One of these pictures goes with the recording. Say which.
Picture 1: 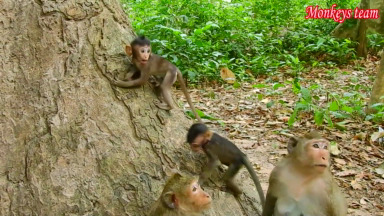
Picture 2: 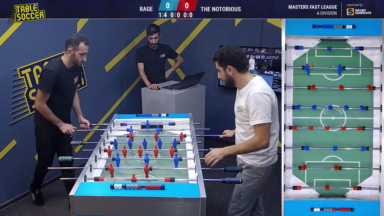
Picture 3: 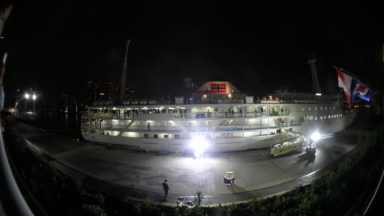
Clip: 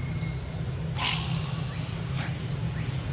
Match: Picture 1